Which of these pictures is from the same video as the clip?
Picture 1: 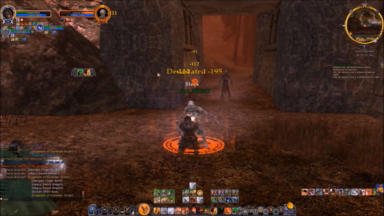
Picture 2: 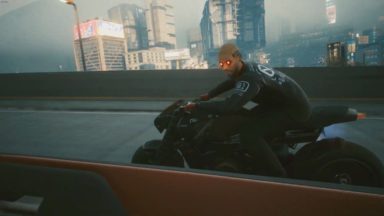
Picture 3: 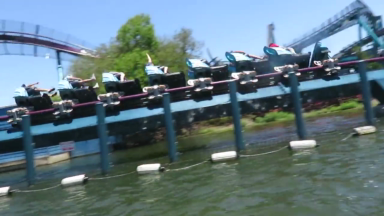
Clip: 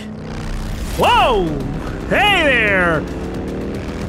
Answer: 2